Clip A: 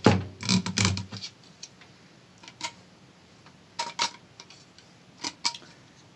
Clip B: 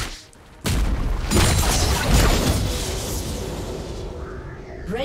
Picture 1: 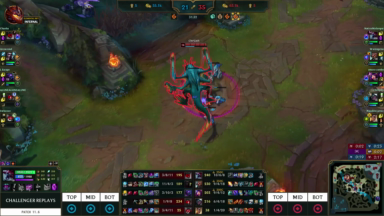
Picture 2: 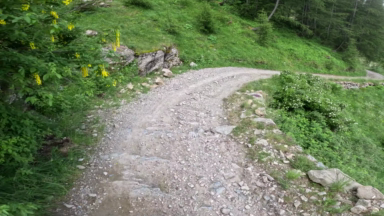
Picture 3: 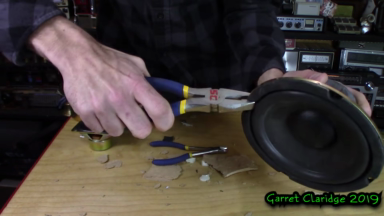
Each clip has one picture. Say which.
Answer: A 3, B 1